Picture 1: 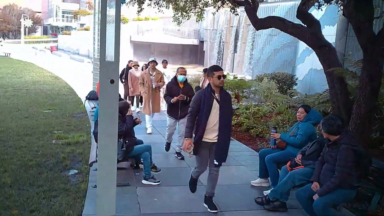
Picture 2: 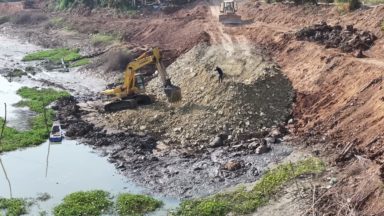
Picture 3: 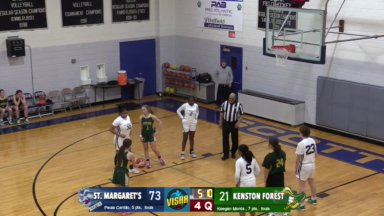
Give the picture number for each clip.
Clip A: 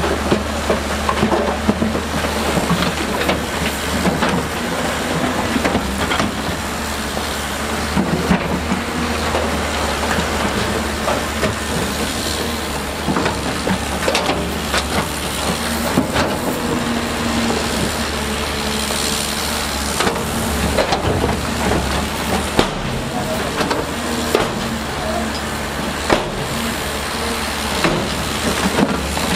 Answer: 2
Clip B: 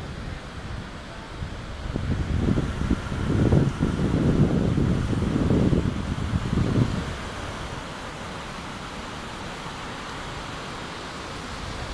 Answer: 1